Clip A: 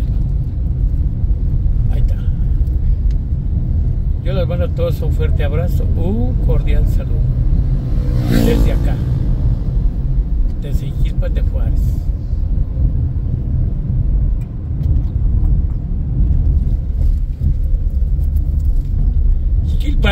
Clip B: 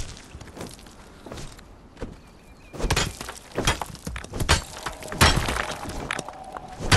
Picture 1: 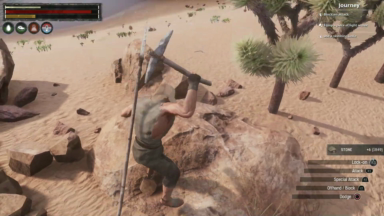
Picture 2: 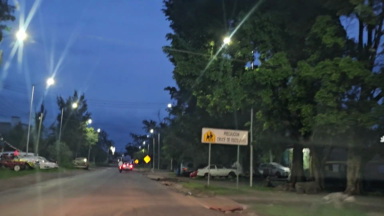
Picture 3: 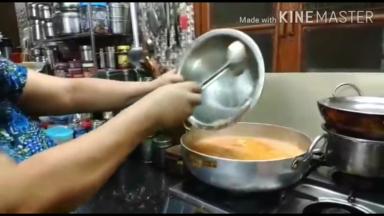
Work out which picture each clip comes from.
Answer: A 2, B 1